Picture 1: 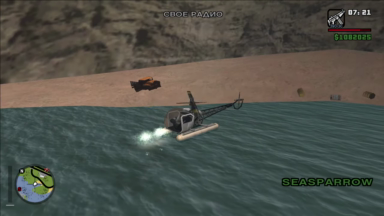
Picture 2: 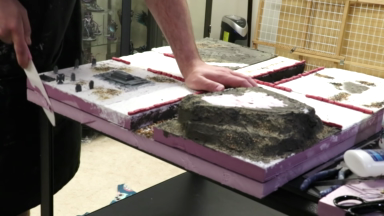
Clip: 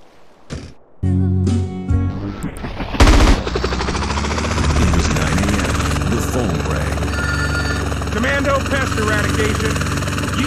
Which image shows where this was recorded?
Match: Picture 1